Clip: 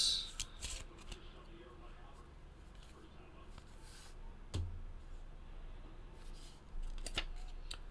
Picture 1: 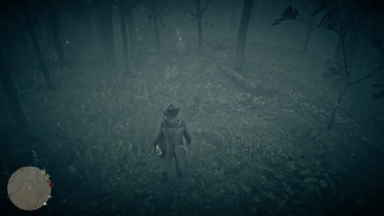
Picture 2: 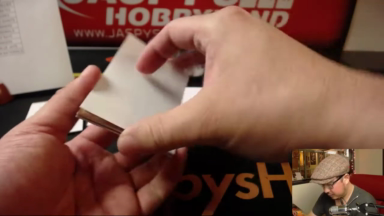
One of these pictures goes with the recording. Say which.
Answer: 2